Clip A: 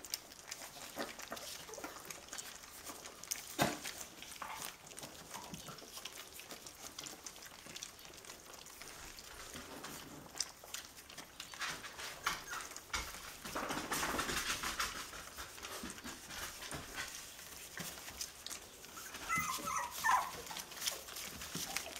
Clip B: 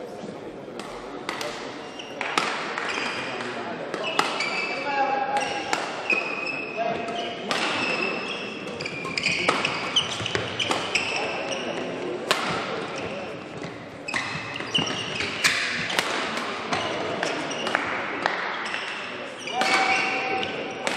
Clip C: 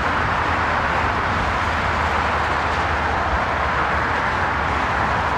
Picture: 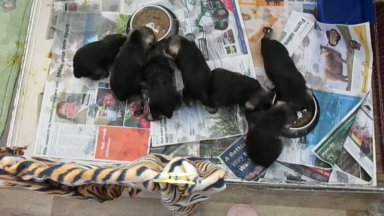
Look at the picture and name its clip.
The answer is A